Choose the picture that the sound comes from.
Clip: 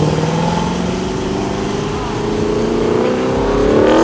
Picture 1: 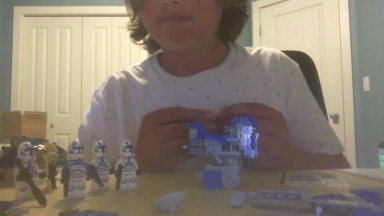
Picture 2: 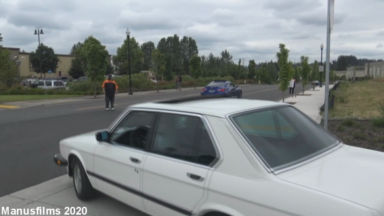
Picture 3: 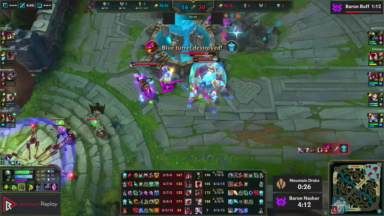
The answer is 2